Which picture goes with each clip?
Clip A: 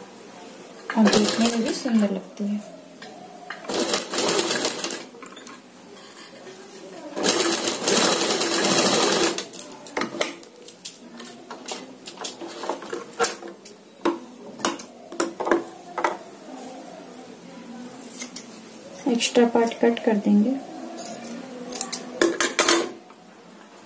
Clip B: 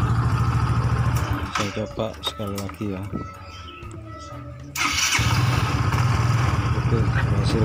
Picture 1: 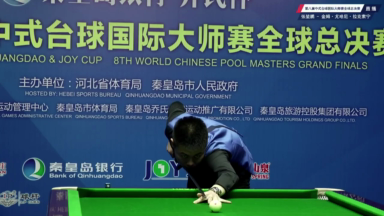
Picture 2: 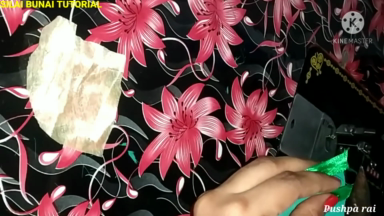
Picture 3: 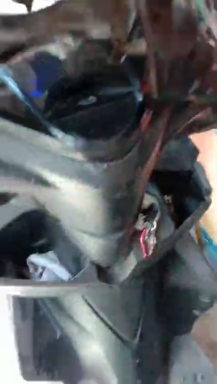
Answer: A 2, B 3